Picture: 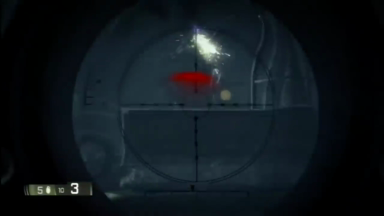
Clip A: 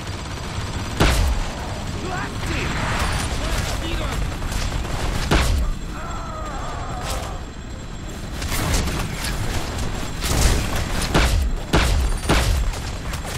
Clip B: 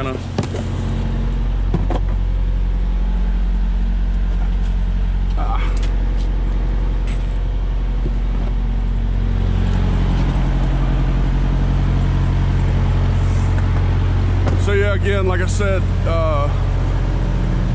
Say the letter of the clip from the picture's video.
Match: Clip A